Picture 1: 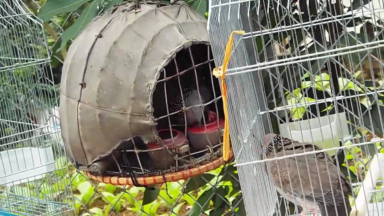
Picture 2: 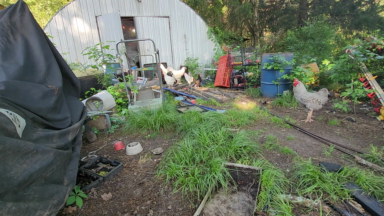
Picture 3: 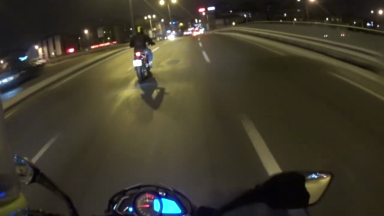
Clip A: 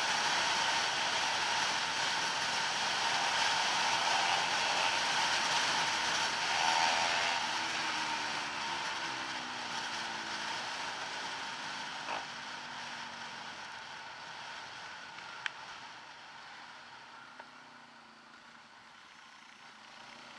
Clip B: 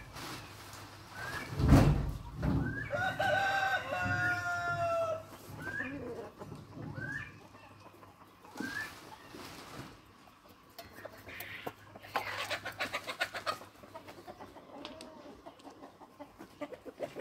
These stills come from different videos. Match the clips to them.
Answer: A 3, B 2